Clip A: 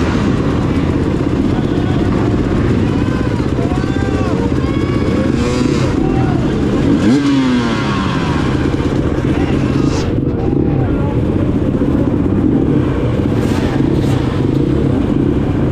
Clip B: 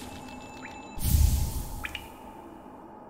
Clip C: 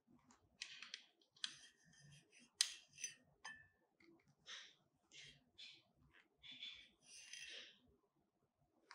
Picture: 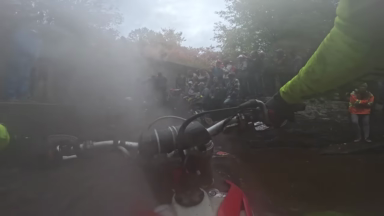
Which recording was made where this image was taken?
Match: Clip A